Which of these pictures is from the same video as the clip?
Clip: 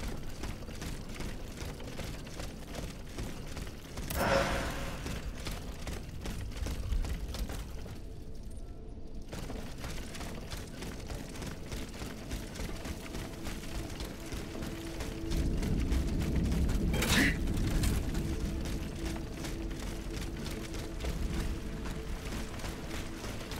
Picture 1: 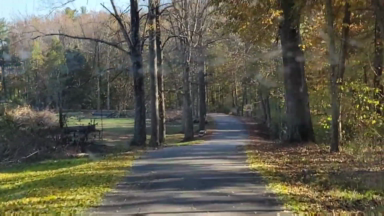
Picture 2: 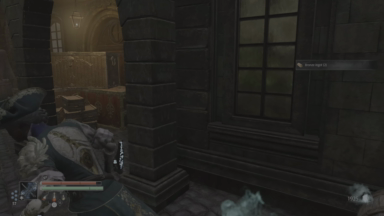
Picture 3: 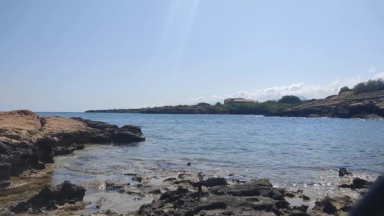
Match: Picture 2